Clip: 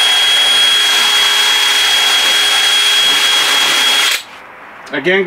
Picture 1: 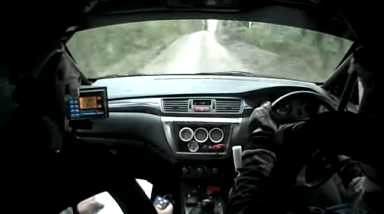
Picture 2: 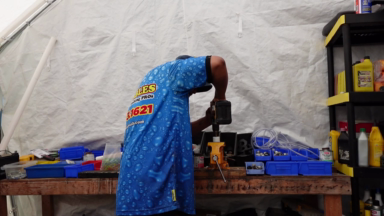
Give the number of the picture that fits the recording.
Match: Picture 2